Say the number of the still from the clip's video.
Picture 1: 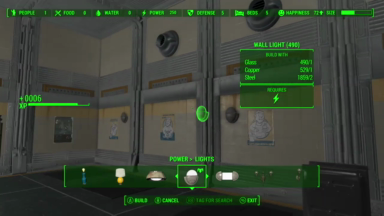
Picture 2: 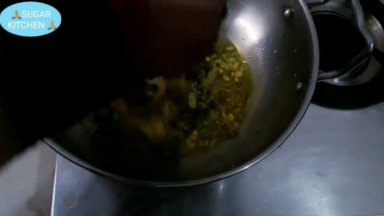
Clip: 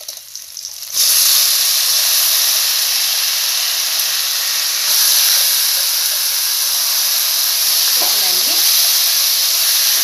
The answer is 2